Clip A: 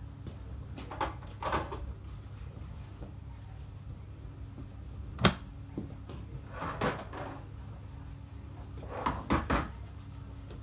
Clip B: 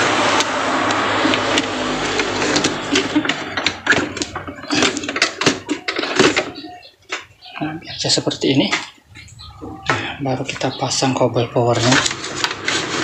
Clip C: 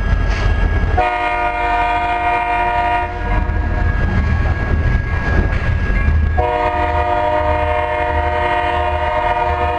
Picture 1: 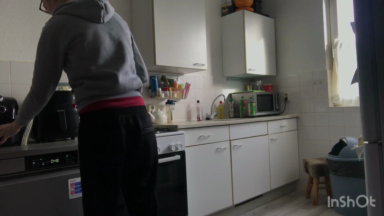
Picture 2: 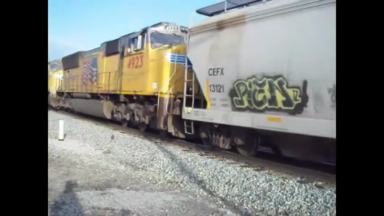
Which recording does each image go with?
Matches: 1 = A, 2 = C